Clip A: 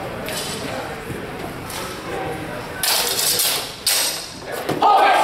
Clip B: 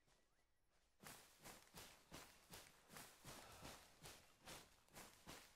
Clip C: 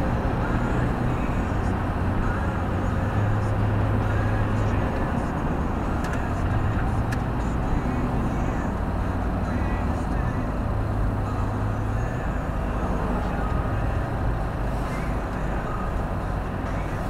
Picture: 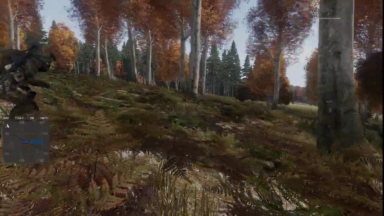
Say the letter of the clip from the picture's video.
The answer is B